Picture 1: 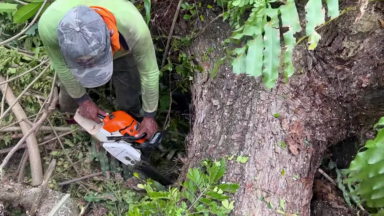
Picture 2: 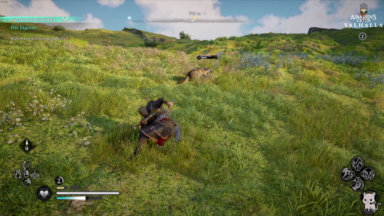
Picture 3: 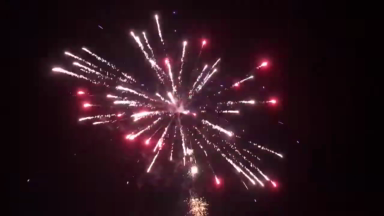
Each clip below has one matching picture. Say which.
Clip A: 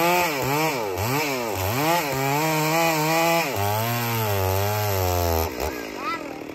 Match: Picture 1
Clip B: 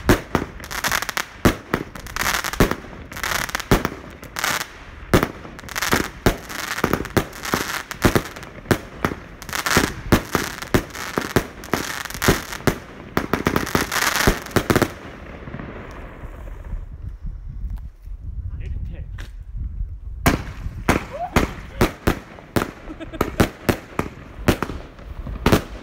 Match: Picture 3